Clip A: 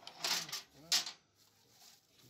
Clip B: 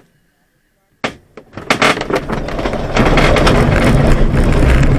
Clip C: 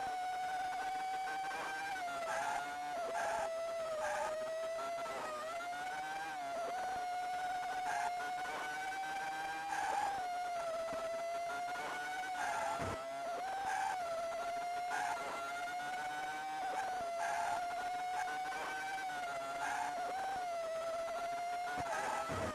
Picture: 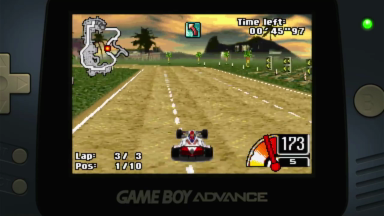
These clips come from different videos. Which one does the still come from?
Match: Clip C